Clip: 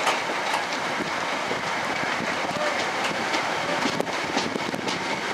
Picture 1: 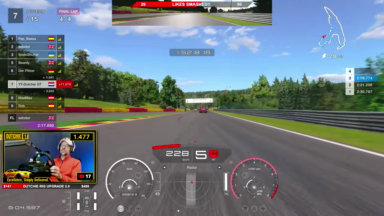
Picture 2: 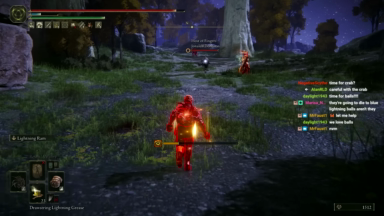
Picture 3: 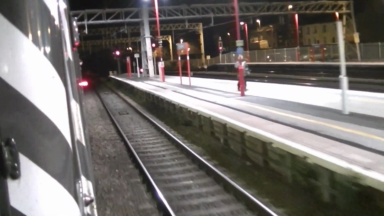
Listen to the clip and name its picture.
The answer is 3